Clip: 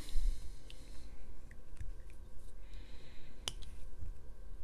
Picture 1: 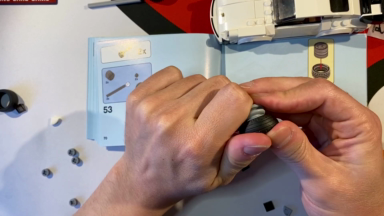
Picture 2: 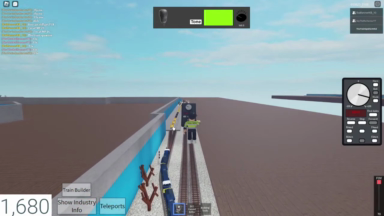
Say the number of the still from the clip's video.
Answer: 1